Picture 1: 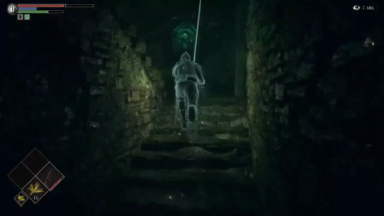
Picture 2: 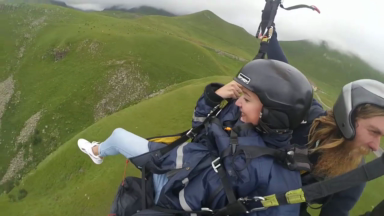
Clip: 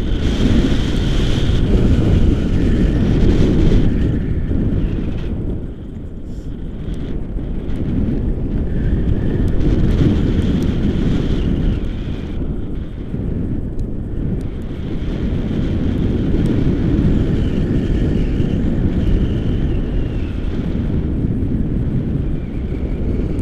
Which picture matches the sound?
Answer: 2